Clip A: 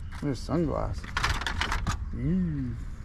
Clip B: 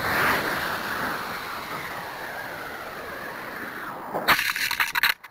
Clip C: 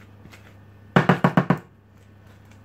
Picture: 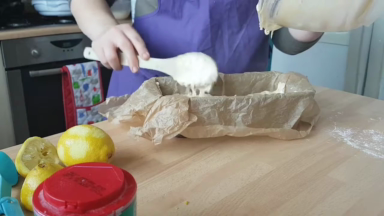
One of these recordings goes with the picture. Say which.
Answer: C